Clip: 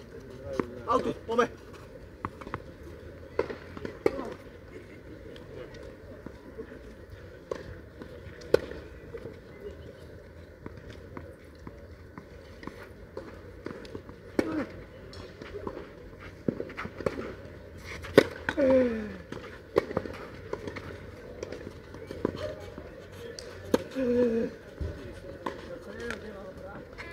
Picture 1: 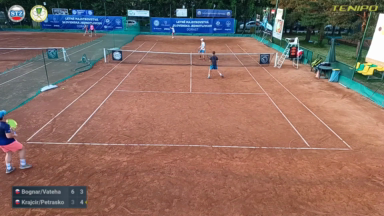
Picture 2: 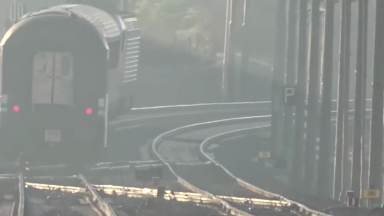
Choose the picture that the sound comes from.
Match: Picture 1